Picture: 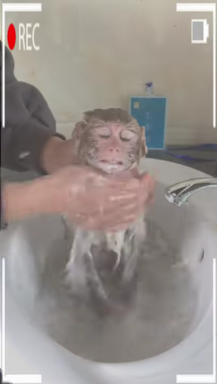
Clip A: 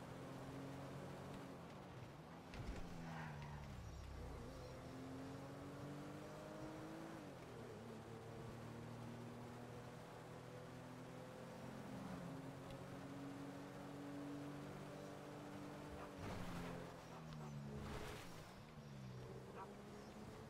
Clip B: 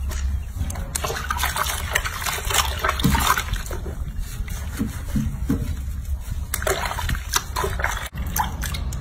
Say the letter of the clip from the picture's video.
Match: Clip B